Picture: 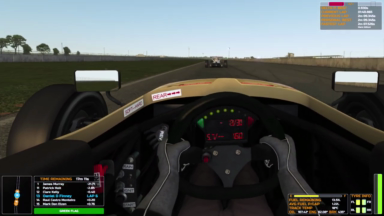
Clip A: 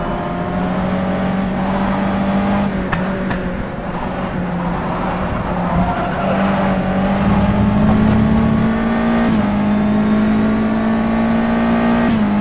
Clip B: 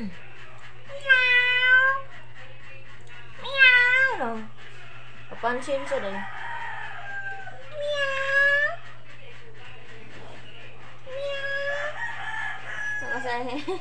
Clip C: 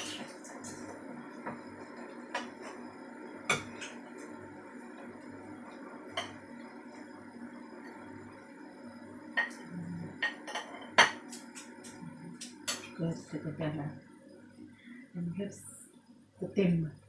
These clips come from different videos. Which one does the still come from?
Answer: A